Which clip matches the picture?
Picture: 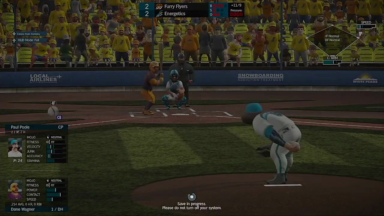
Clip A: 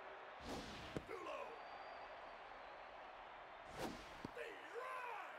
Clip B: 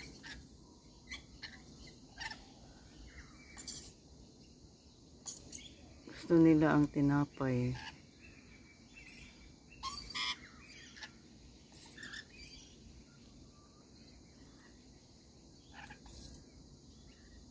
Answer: A